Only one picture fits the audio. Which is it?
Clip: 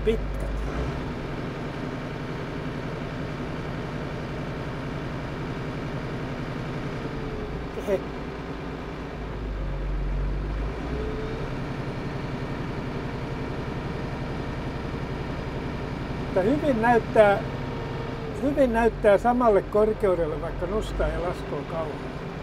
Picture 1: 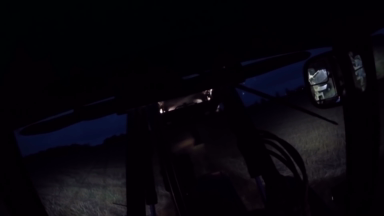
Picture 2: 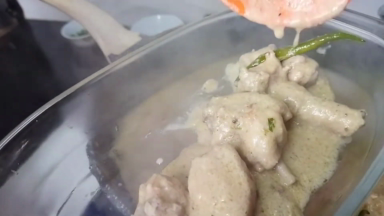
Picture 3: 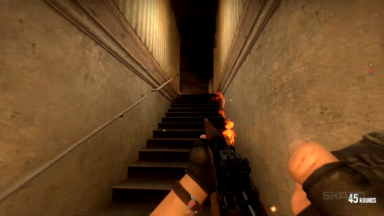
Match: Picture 1